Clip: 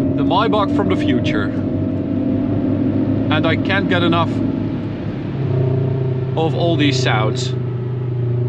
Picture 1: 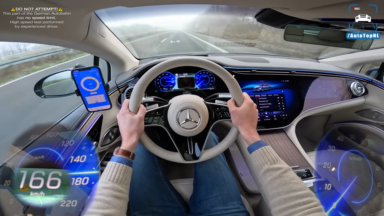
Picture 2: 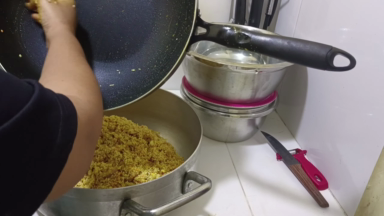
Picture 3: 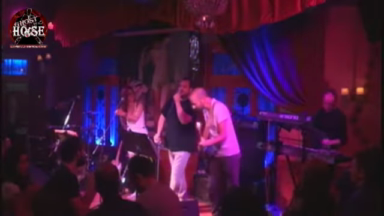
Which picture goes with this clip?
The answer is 1